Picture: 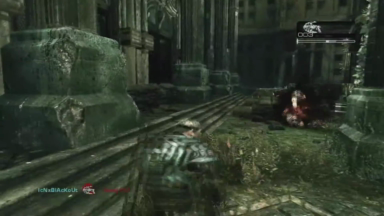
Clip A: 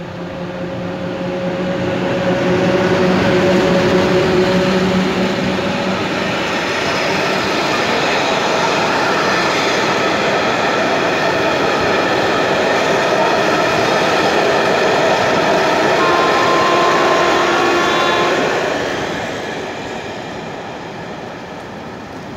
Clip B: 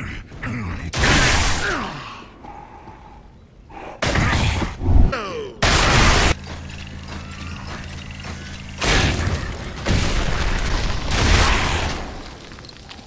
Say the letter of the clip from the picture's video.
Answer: B